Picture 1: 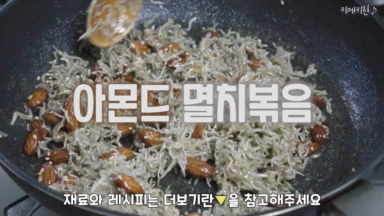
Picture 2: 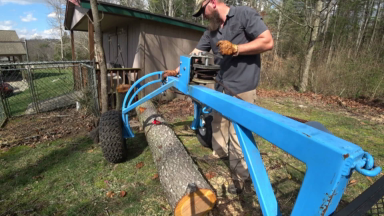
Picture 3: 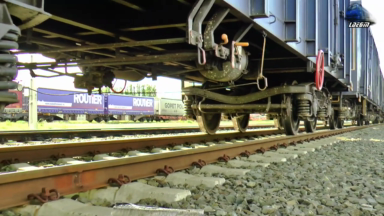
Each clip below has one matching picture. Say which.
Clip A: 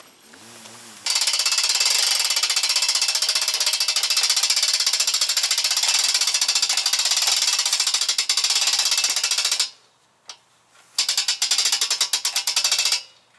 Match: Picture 2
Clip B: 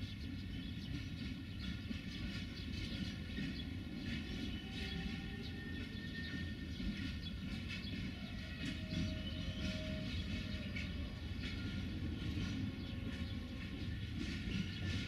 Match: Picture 3